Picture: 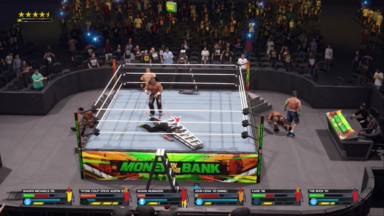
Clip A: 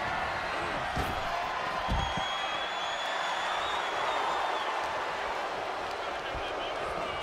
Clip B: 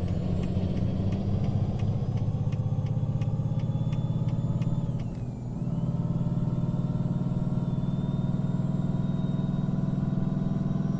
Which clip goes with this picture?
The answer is A